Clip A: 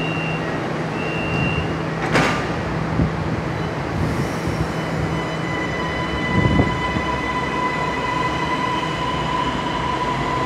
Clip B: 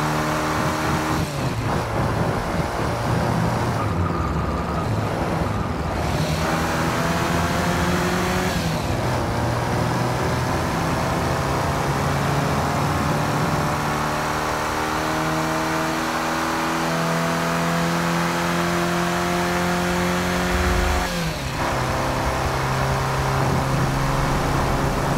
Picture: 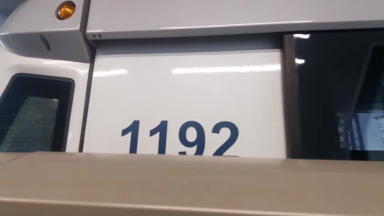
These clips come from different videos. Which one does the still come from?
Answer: A